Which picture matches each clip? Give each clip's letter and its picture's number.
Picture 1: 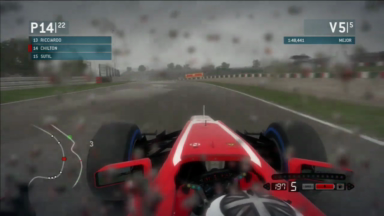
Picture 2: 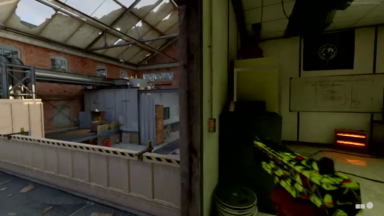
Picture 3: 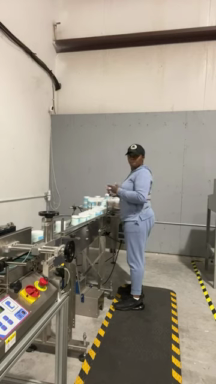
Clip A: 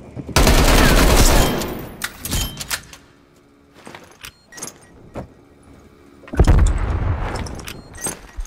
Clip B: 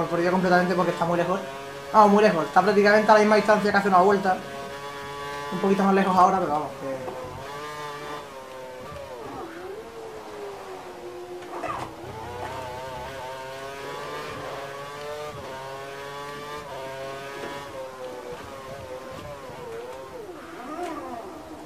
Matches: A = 2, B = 1